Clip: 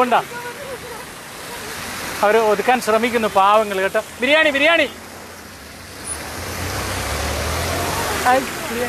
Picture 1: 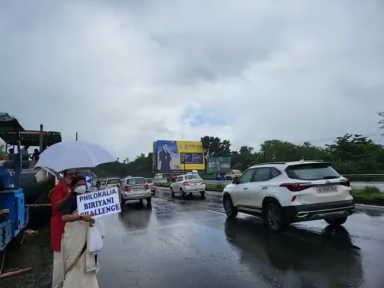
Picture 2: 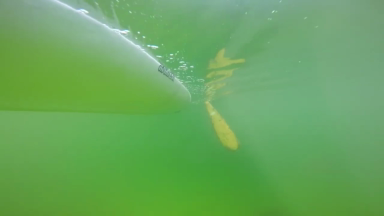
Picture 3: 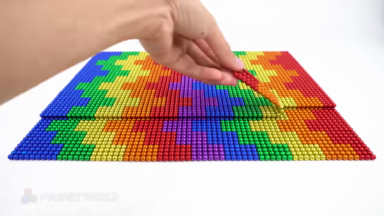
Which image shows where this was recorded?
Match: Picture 1